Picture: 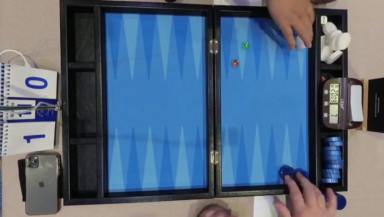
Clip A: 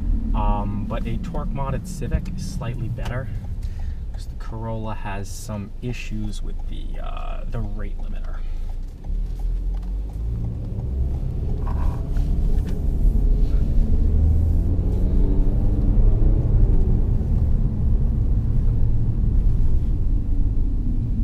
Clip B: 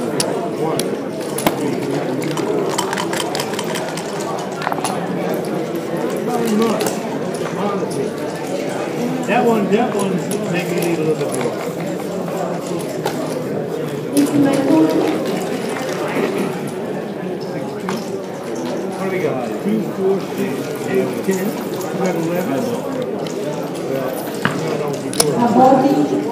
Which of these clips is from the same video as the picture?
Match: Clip B